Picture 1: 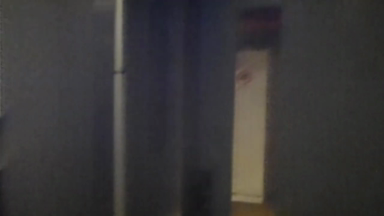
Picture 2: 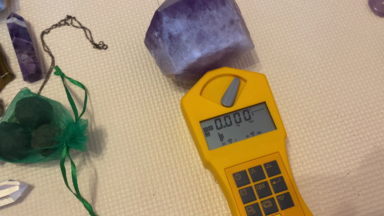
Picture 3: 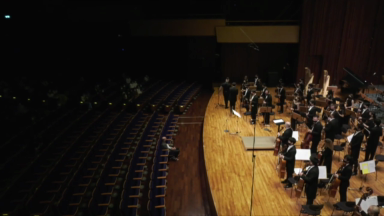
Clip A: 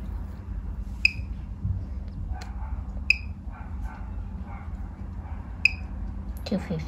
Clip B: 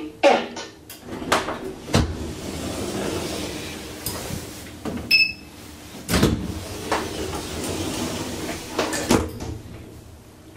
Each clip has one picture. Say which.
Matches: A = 2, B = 1